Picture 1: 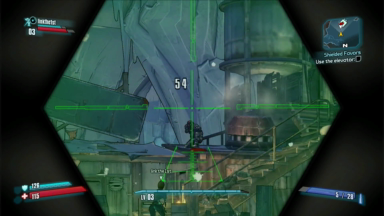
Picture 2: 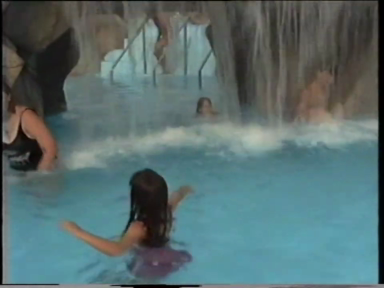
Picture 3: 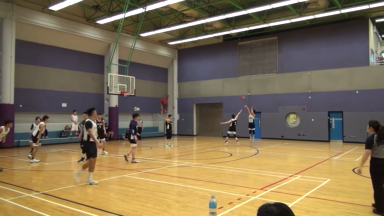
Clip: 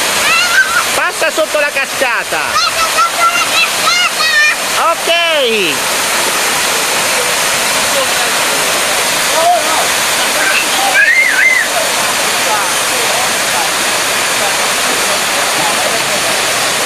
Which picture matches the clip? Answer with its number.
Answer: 2